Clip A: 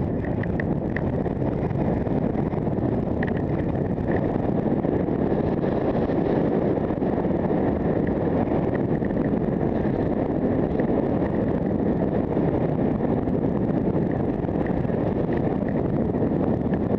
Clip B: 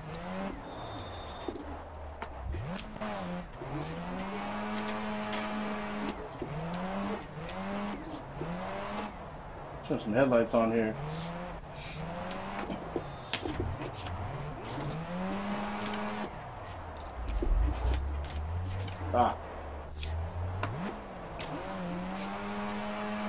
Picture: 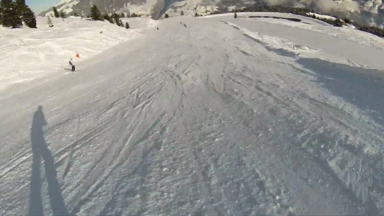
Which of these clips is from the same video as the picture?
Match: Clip A